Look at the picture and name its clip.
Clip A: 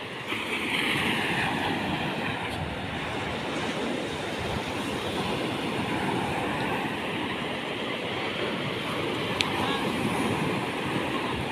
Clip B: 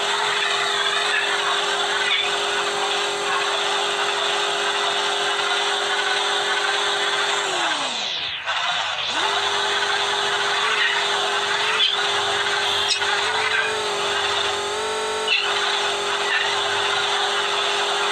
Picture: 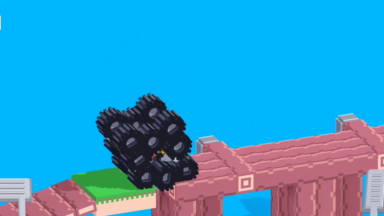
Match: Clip B